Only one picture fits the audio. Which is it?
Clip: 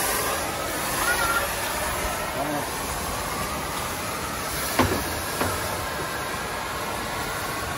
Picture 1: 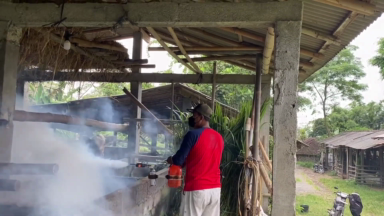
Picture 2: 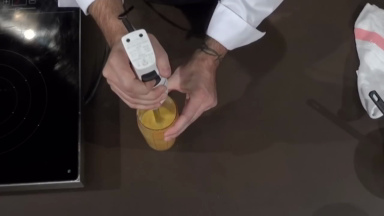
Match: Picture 1